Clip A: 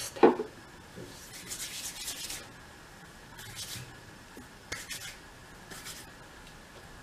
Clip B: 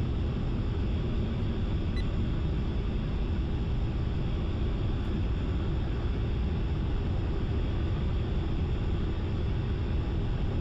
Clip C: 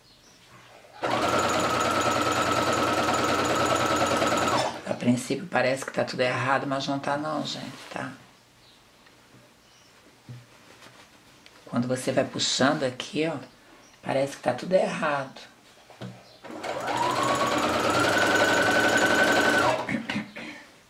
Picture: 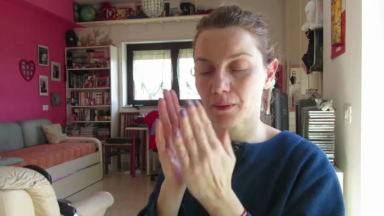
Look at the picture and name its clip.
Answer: A